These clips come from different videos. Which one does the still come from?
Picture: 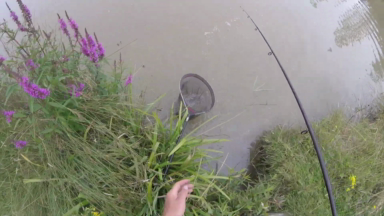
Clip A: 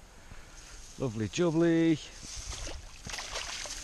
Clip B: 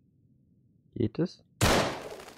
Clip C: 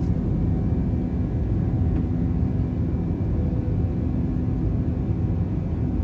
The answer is A